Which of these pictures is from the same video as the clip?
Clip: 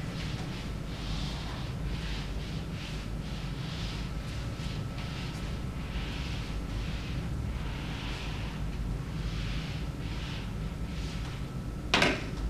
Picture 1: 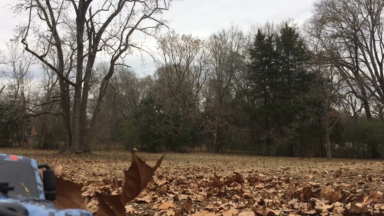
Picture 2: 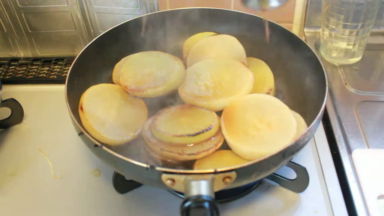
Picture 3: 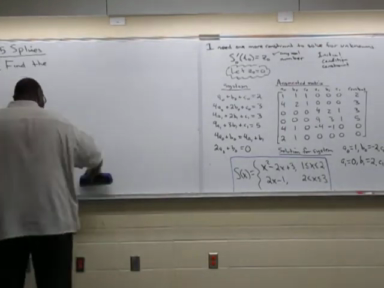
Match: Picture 3